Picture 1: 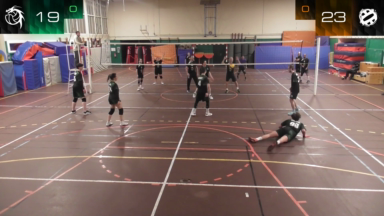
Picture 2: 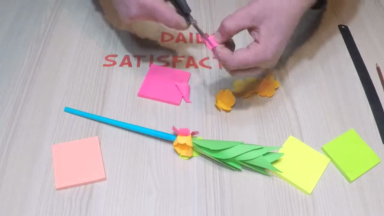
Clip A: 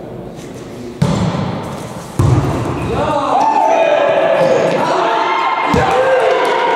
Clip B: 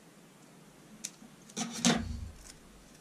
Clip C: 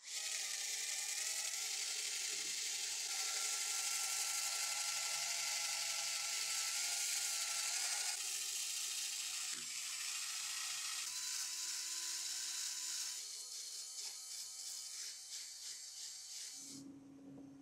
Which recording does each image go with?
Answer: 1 A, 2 B